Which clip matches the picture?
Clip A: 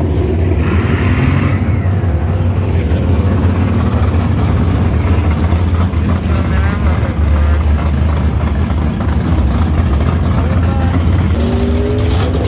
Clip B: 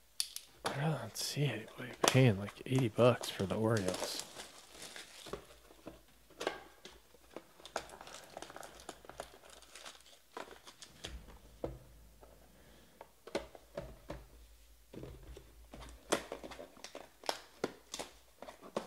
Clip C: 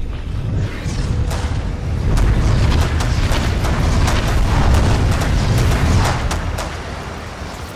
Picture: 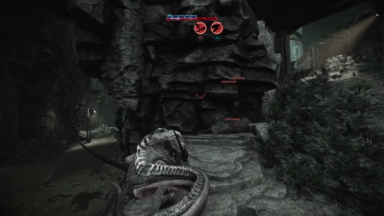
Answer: C